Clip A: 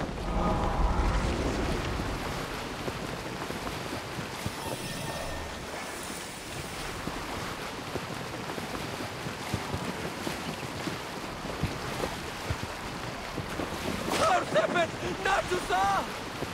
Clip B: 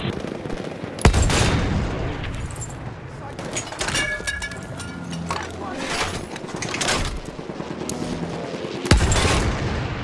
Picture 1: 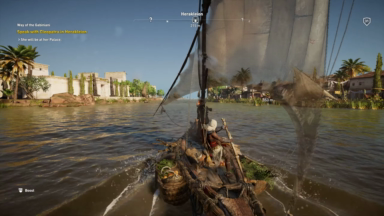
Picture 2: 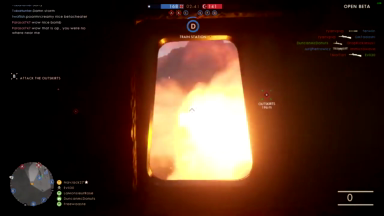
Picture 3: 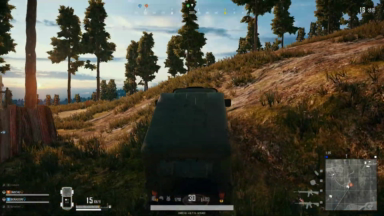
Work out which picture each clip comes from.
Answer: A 1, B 2